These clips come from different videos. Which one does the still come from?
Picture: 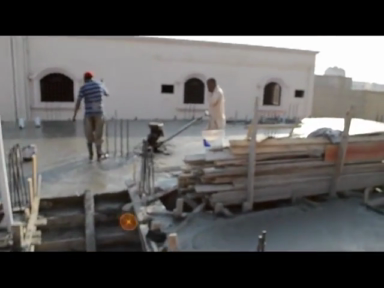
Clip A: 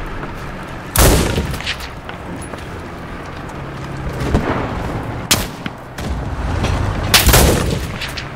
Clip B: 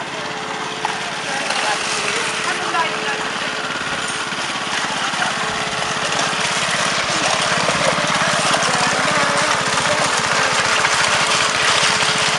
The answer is B